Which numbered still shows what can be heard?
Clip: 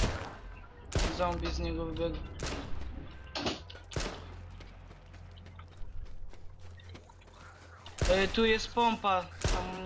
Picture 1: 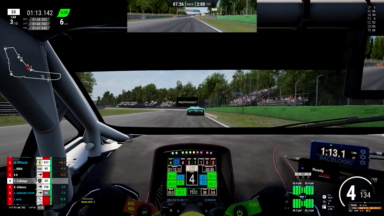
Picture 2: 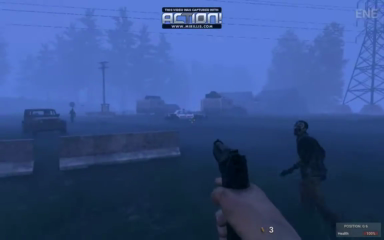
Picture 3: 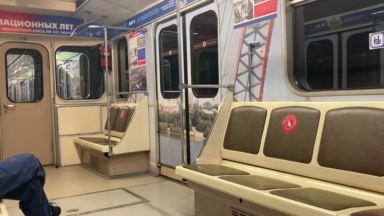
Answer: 2